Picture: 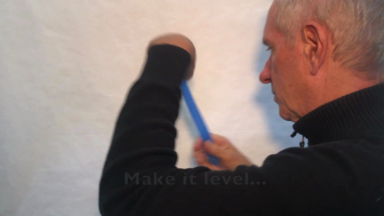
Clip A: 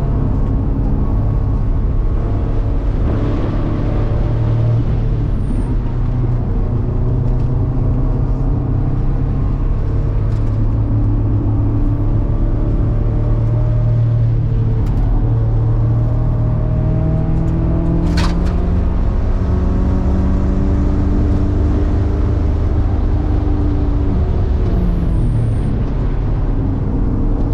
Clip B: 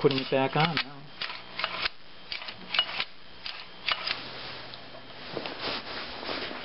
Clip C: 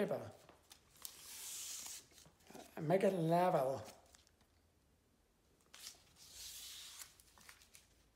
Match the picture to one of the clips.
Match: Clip C